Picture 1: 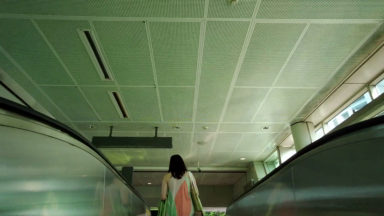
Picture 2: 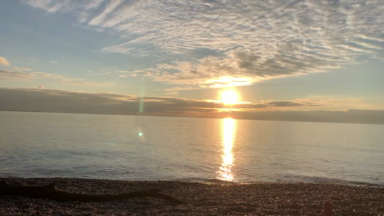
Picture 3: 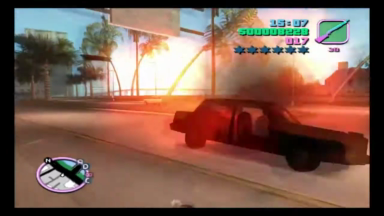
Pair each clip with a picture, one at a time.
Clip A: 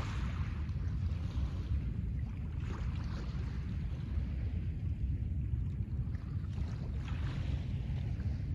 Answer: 2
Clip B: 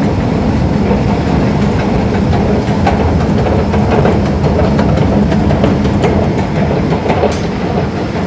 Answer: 1